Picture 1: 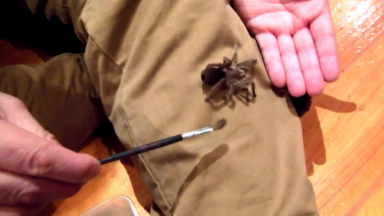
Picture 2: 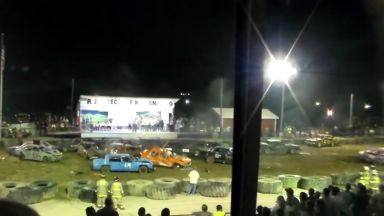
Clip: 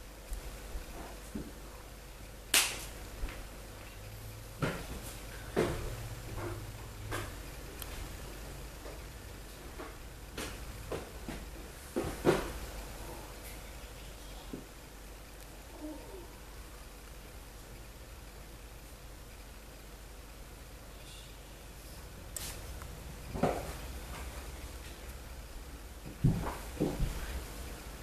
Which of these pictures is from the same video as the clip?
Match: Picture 1